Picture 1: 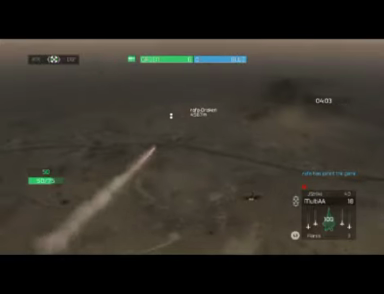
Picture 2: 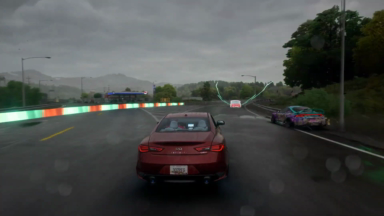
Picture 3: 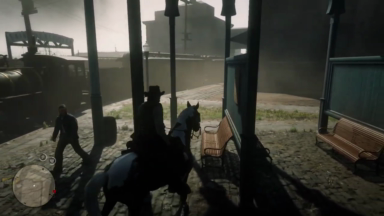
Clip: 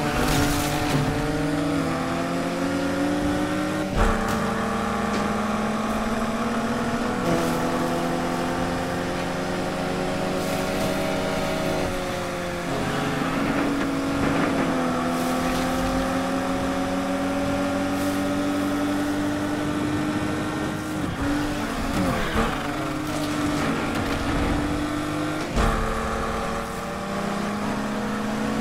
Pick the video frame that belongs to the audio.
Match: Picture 2